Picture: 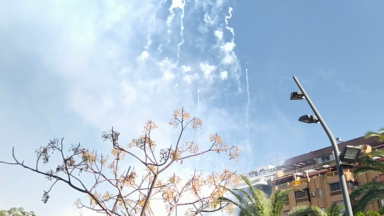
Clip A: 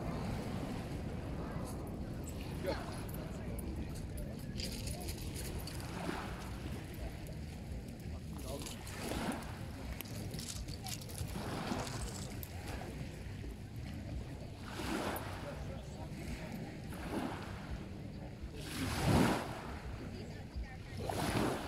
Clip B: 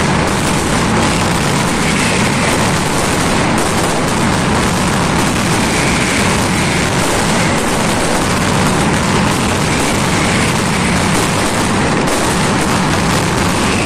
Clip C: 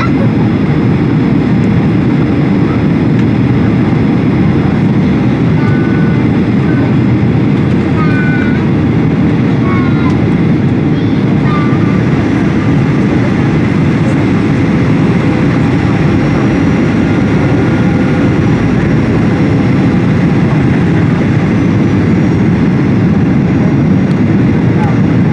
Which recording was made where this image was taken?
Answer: B